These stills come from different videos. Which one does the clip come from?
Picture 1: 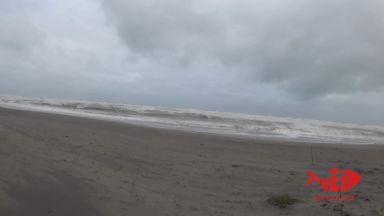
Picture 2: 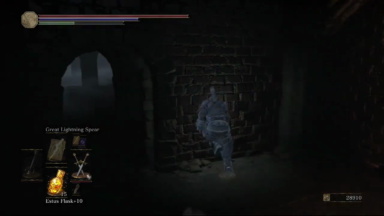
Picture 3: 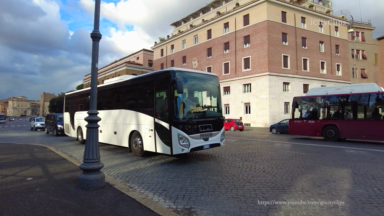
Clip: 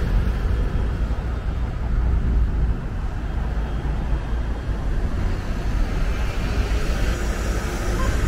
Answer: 3